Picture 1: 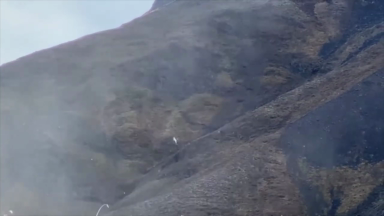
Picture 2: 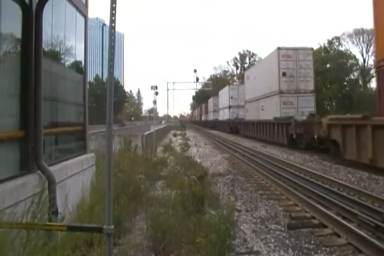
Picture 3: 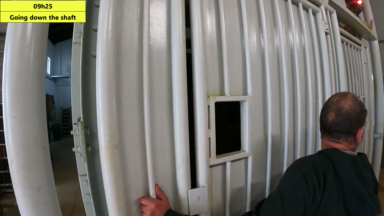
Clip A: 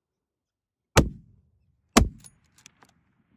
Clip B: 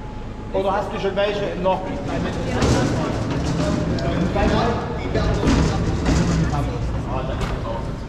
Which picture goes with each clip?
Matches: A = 1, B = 3